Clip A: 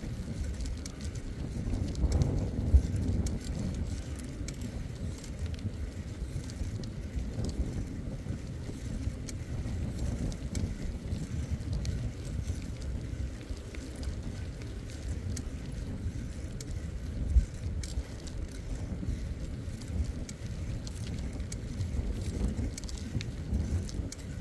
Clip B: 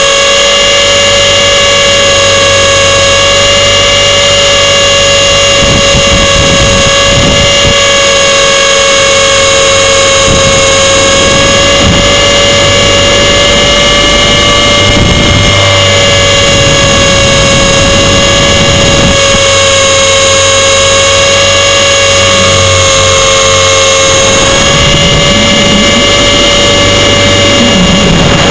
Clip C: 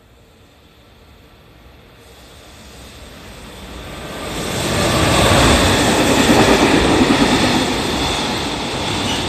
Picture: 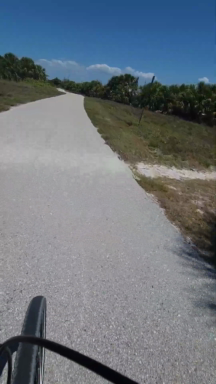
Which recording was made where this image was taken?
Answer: A